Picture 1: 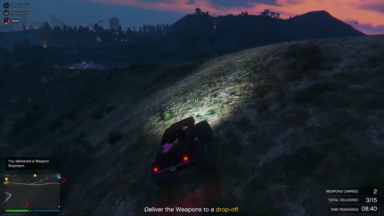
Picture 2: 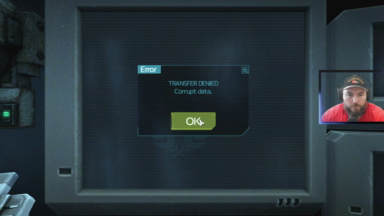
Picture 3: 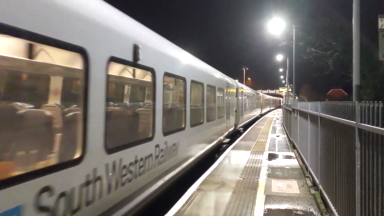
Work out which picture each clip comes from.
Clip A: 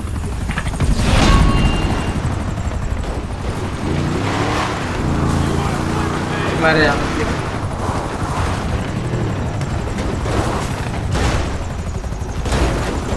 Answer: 1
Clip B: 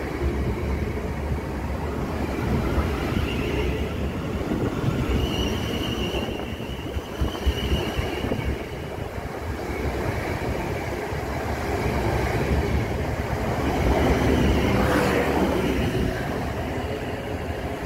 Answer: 3